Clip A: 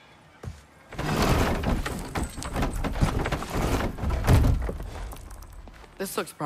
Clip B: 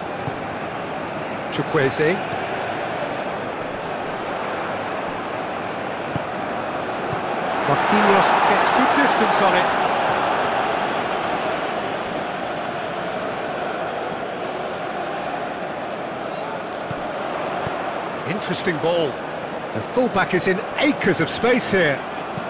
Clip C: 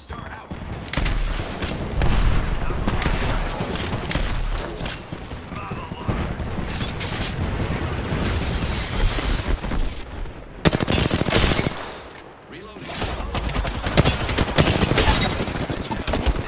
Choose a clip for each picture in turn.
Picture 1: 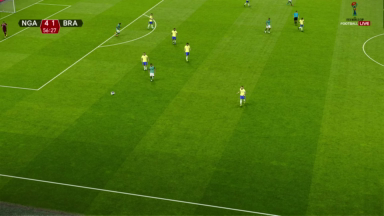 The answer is B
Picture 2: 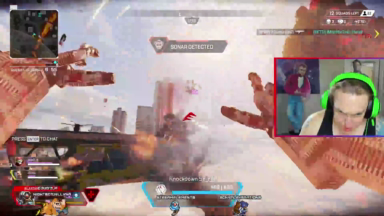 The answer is C